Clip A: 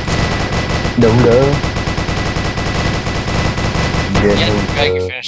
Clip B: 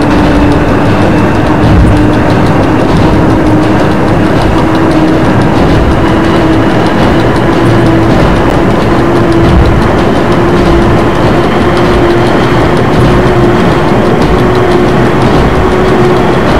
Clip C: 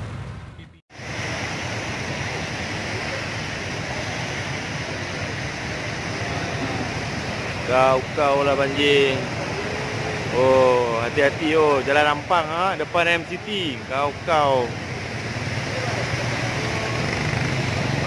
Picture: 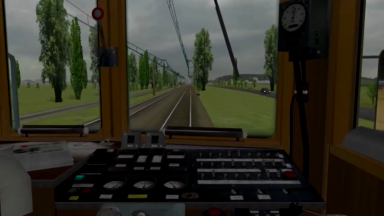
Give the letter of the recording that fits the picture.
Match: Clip B